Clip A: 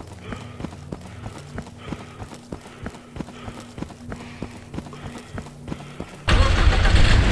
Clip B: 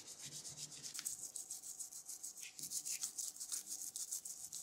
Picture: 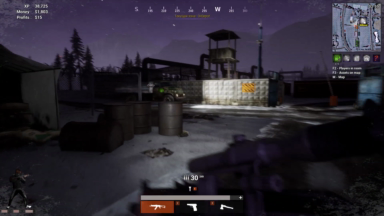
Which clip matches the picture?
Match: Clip A